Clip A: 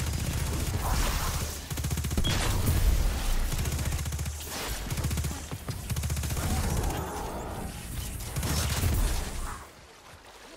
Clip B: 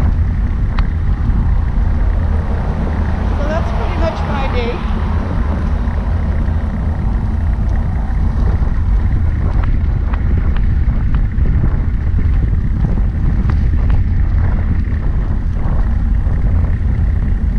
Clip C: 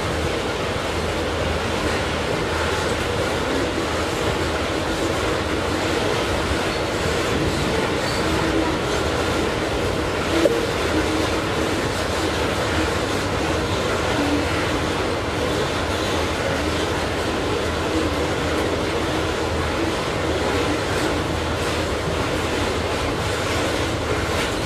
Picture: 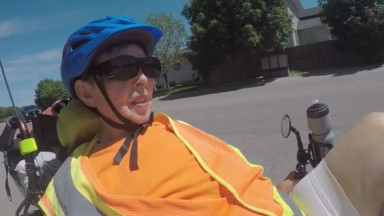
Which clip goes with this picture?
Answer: B